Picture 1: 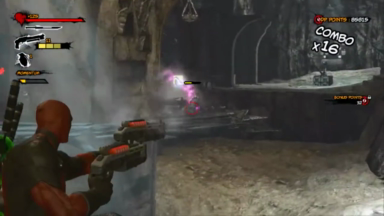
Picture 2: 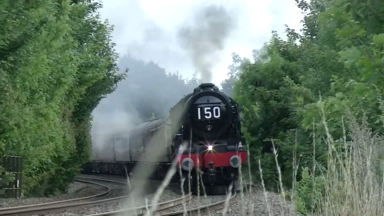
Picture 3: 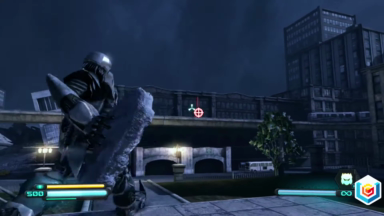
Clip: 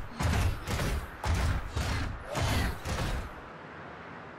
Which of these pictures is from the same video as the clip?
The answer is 3